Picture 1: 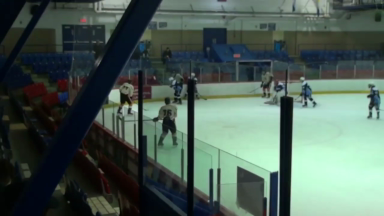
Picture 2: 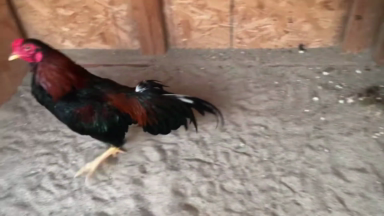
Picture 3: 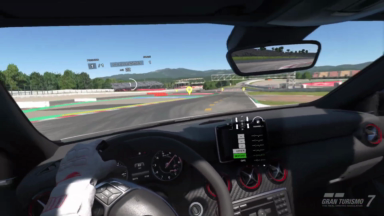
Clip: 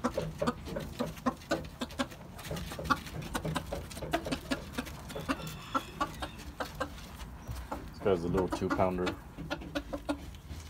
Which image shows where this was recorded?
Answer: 2